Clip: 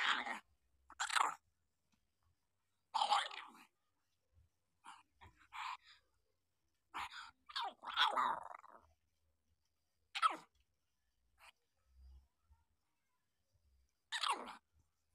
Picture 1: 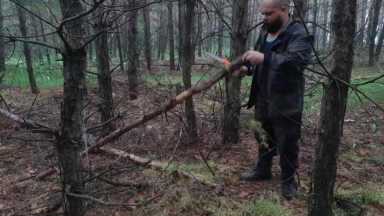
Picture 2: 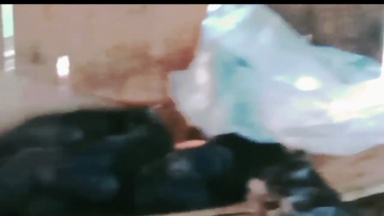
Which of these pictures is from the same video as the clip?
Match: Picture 2